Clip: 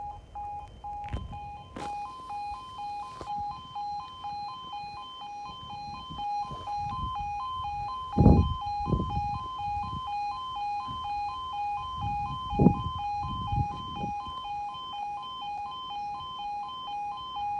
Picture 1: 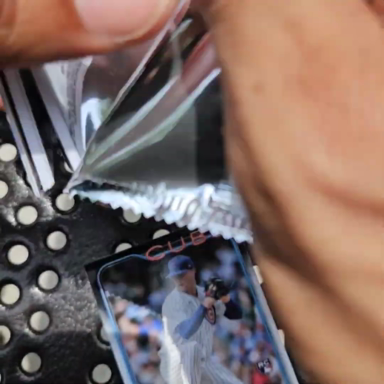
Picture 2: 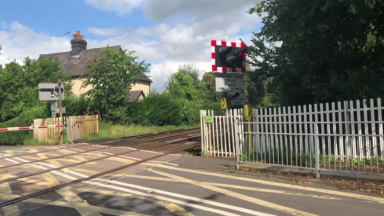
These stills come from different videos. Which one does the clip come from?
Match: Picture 2